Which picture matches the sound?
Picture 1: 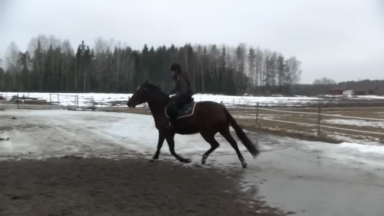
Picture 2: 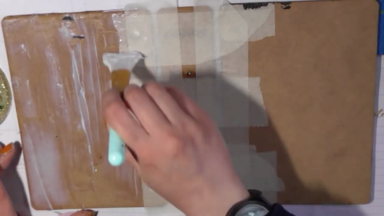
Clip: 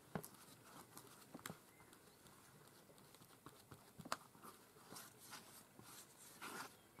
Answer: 2